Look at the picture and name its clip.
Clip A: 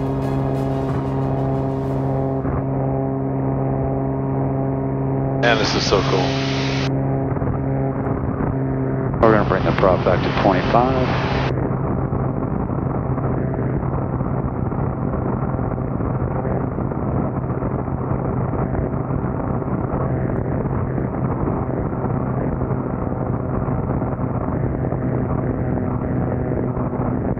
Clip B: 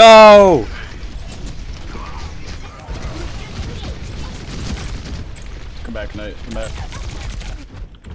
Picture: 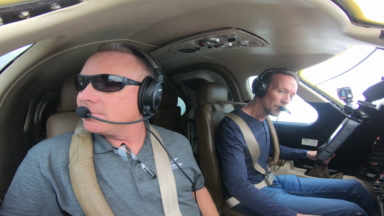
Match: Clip A